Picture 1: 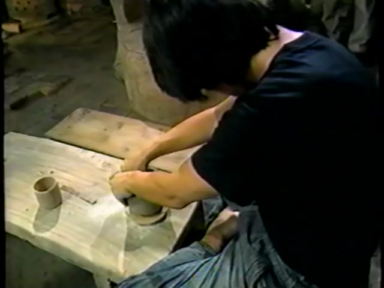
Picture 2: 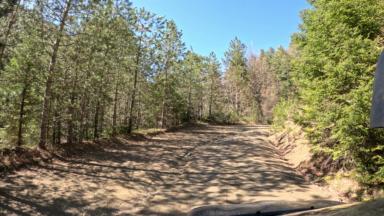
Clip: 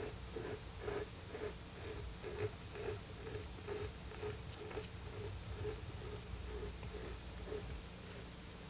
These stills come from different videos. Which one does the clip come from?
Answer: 1